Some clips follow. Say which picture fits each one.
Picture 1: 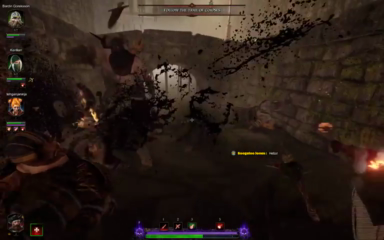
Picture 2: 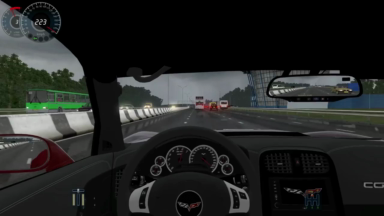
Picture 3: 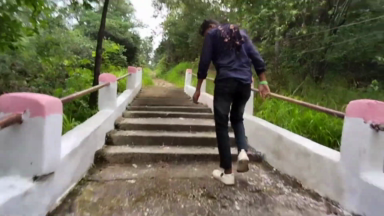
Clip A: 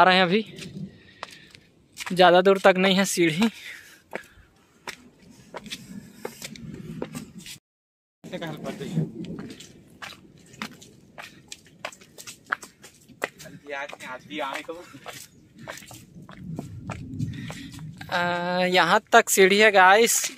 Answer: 3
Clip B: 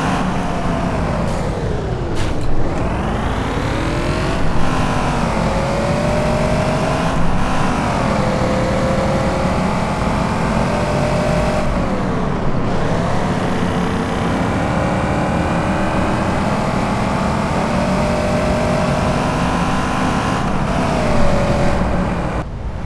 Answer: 2